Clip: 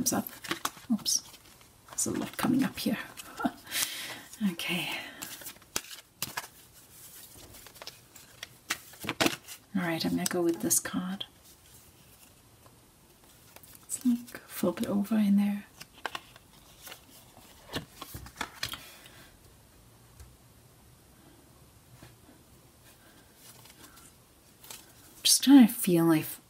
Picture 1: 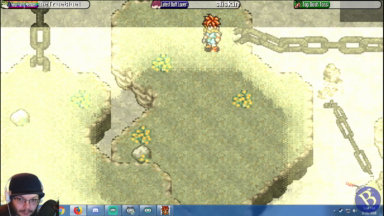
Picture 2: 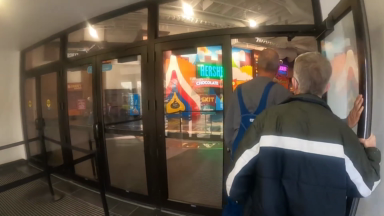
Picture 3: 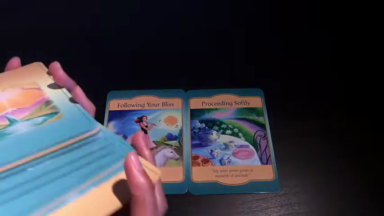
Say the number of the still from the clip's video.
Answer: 3